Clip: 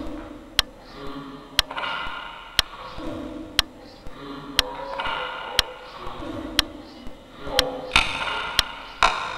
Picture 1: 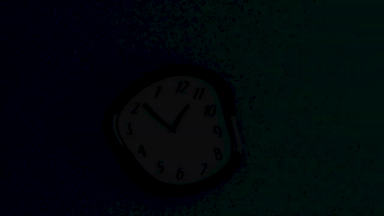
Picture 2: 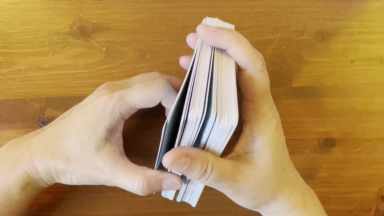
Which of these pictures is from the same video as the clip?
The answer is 1